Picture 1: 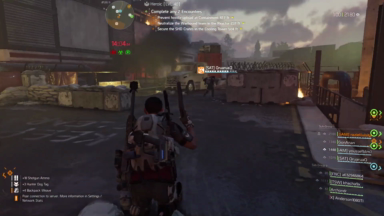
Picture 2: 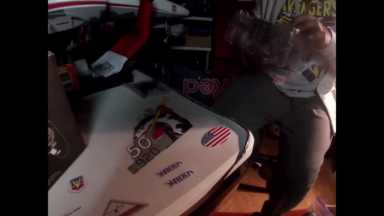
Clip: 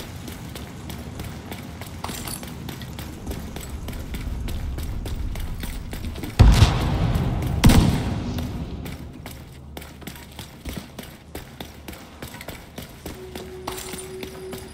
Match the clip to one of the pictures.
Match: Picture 1